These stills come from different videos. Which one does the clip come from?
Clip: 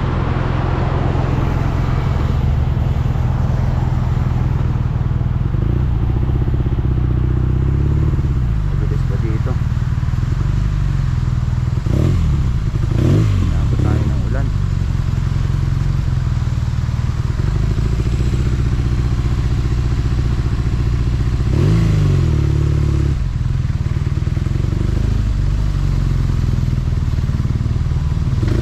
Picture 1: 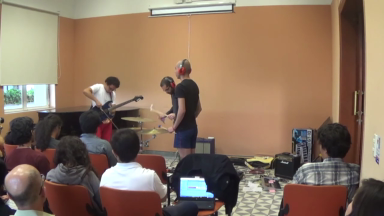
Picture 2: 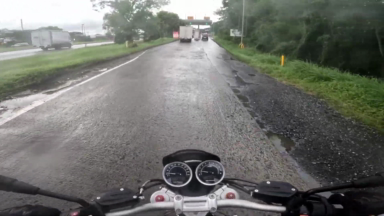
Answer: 2